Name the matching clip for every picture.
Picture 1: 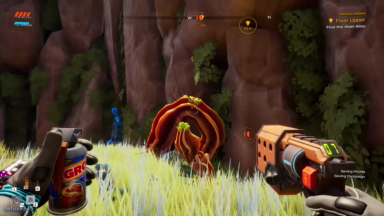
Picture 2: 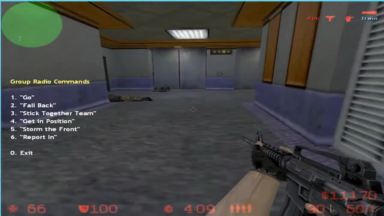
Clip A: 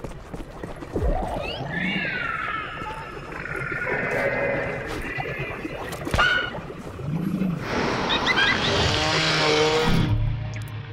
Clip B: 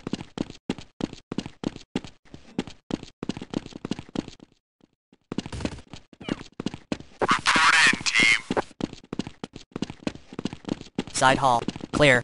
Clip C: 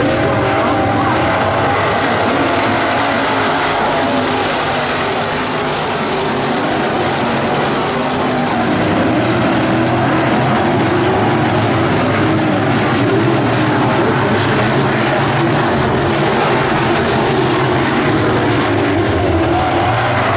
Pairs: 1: A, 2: B